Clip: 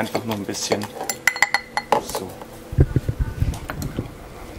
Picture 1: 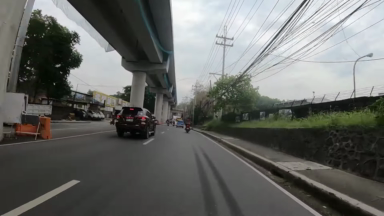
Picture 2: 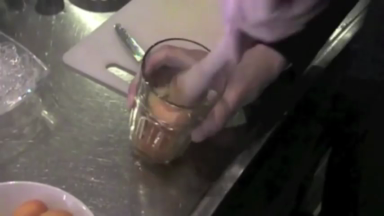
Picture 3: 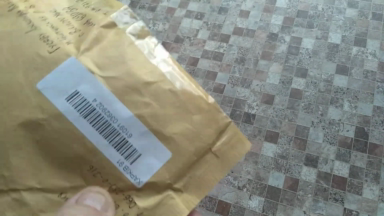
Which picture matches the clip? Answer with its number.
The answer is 2